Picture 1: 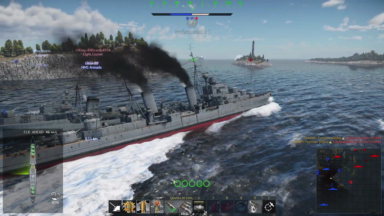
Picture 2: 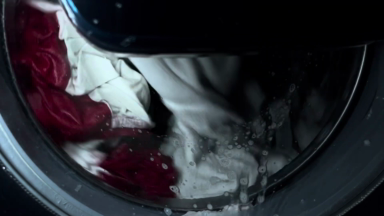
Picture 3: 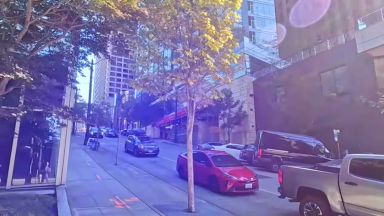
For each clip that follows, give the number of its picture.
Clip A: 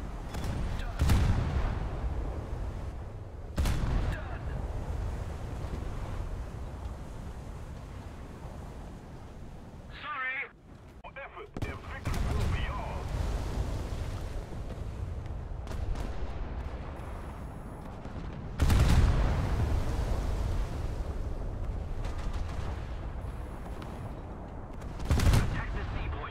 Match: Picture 1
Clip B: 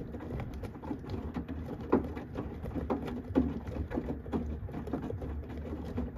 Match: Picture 2